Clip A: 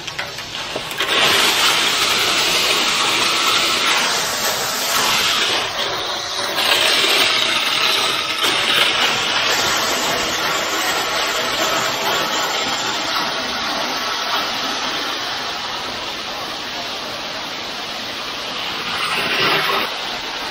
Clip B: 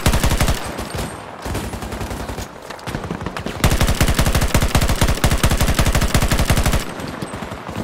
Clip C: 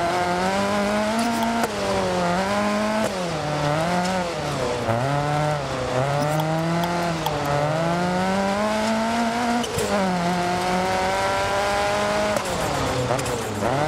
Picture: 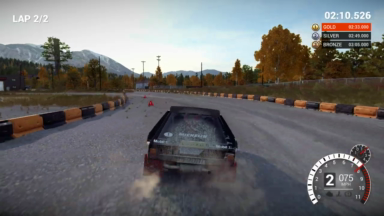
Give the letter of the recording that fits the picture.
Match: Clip C